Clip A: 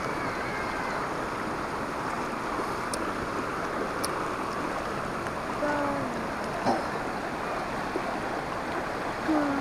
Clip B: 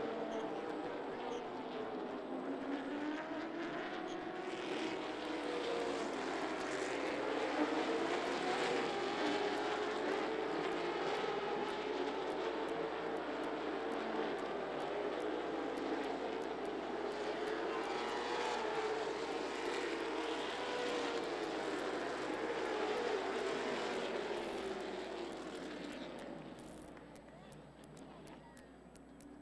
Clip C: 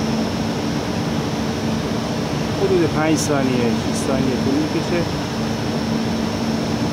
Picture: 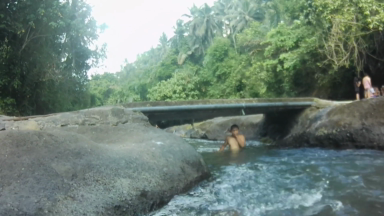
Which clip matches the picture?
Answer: A